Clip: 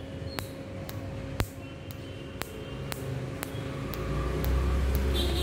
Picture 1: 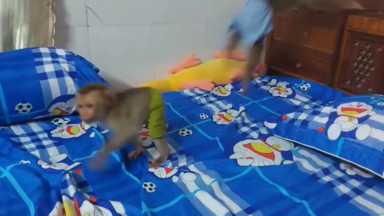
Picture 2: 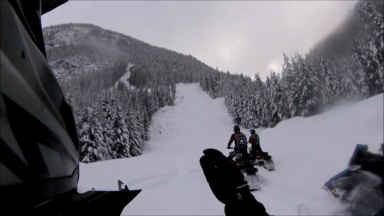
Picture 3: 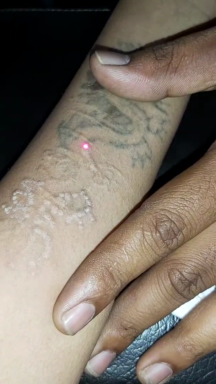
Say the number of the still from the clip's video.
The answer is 3